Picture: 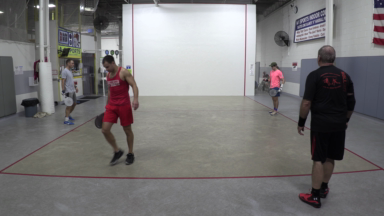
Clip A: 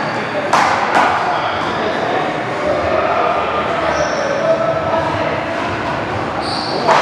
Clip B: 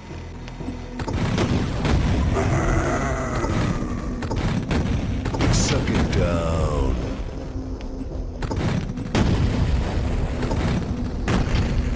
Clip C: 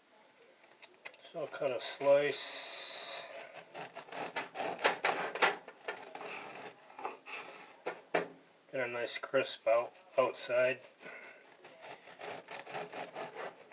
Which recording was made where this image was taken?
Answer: A